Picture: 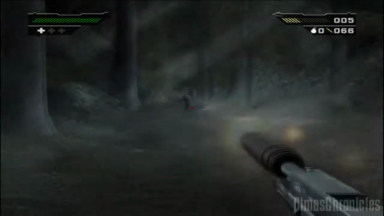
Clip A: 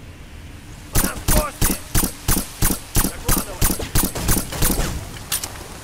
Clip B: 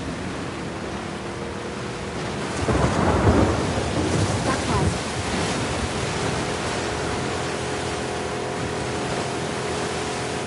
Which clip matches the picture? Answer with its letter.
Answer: A